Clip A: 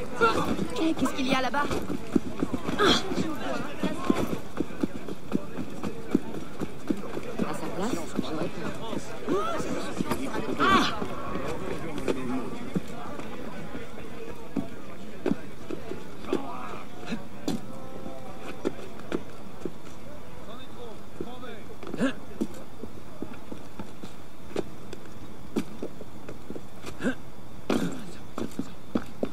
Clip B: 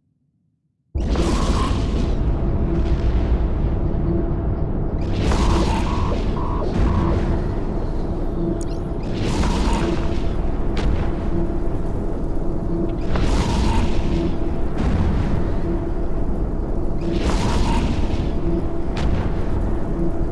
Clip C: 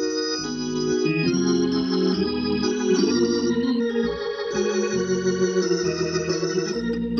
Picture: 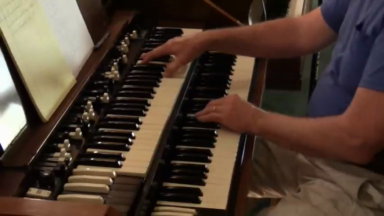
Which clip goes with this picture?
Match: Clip C